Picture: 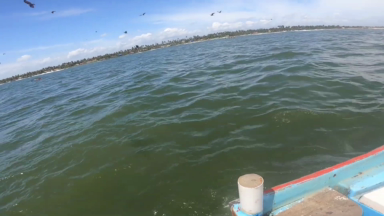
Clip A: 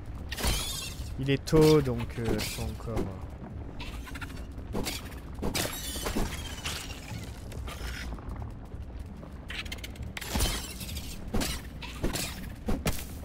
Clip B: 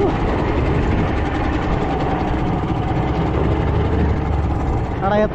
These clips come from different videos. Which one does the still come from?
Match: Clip B